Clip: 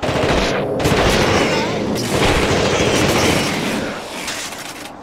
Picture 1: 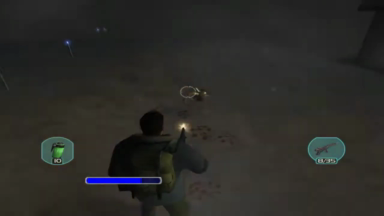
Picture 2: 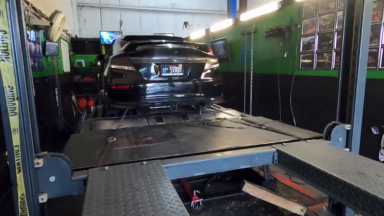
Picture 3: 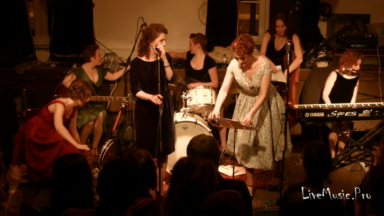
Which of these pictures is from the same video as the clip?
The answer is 1